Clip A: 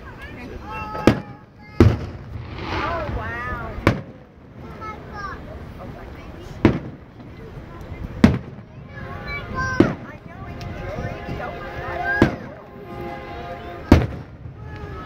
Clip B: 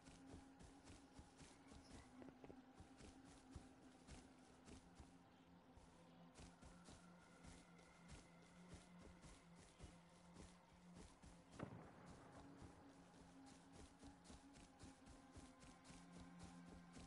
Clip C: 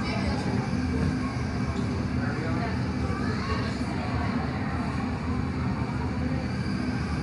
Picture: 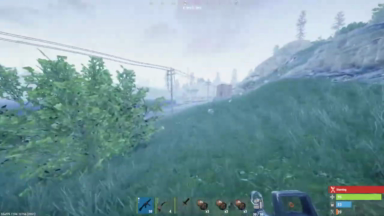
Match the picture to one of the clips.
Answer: B